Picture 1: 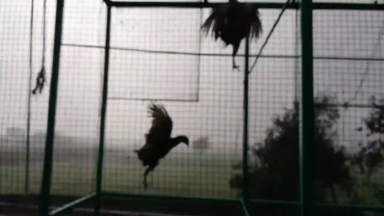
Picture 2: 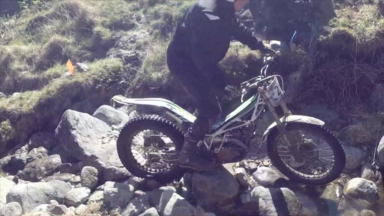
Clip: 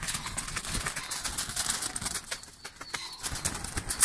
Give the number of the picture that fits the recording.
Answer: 1